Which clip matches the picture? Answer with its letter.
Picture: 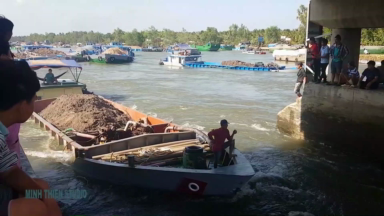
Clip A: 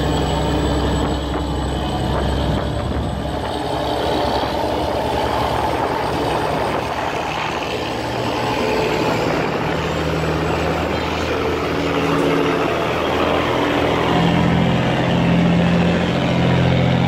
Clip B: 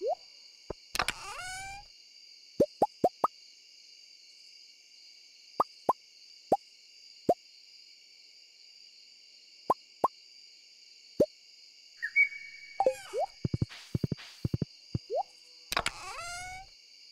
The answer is A